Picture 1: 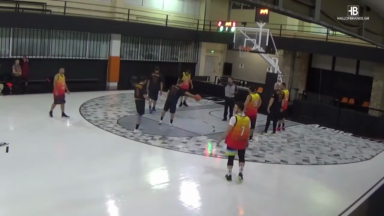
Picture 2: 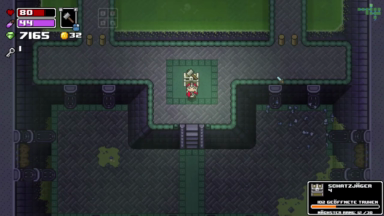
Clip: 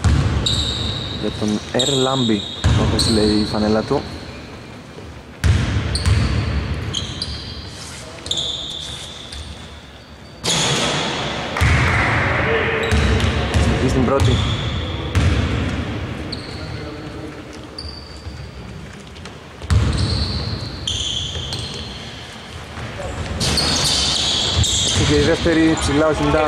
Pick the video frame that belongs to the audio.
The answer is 1